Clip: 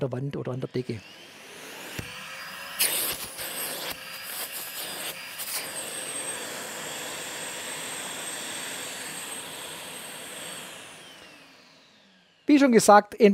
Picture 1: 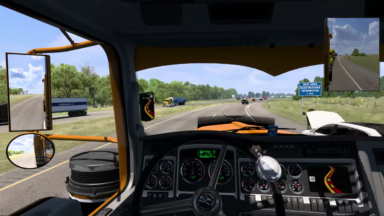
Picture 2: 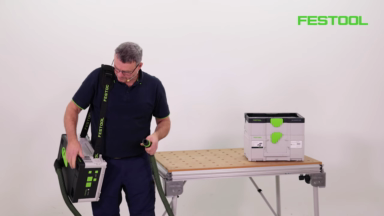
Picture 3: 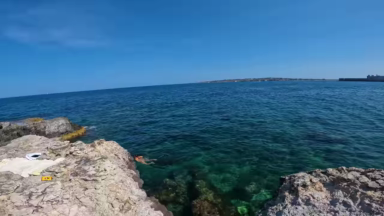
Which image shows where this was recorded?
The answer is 2